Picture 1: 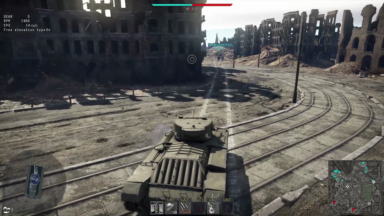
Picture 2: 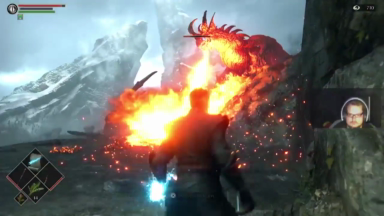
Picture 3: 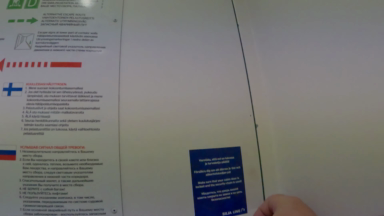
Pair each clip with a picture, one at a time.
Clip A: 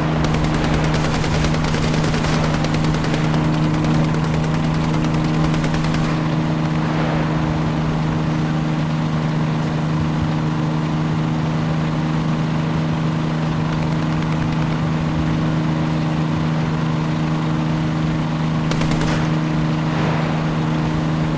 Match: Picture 1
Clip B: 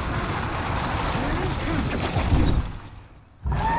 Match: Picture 2